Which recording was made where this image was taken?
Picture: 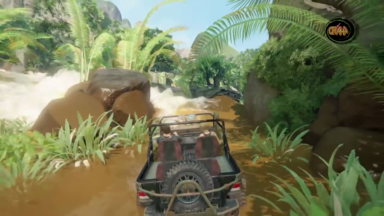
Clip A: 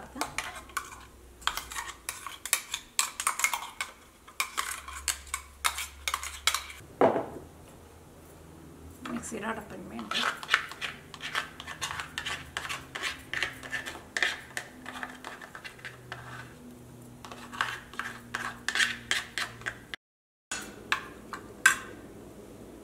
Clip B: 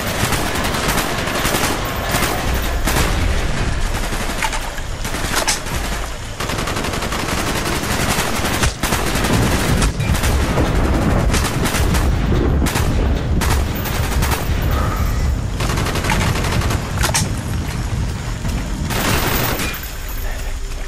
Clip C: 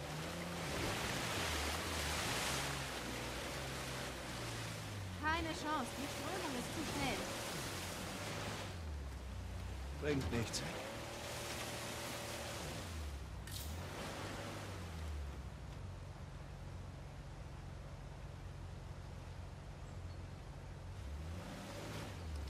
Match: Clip C